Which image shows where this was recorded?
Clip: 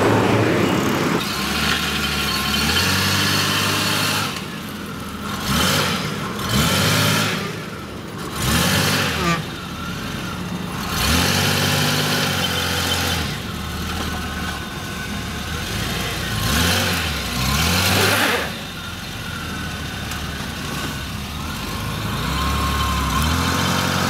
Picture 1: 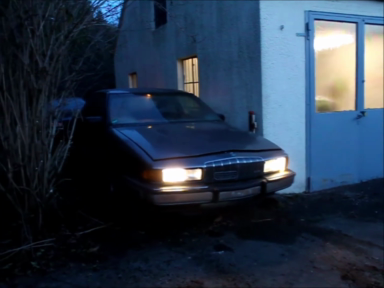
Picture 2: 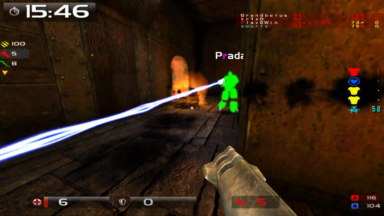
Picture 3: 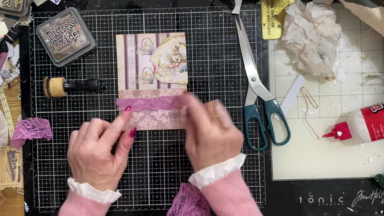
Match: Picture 1